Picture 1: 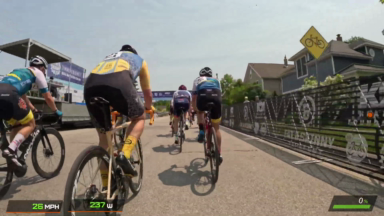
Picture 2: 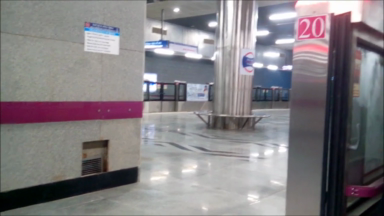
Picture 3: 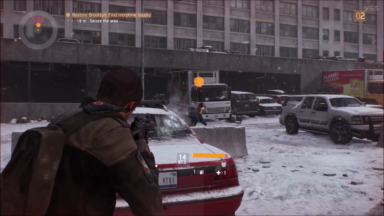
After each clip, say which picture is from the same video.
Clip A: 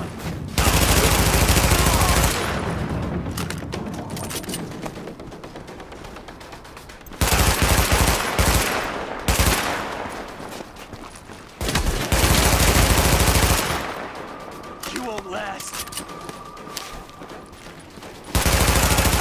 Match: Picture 3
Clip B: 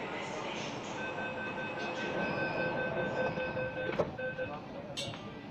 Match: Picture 2